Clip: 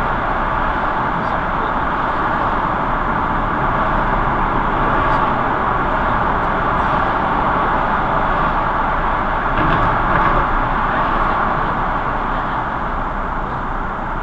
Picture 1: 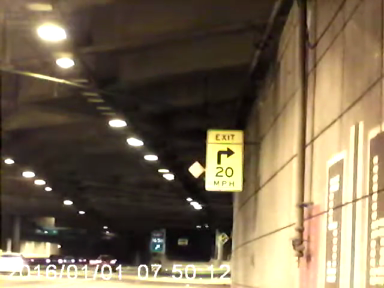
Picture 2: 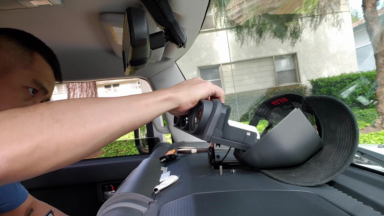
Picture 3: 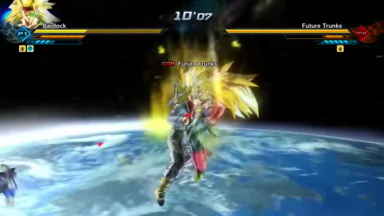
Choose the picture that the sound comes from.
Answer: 1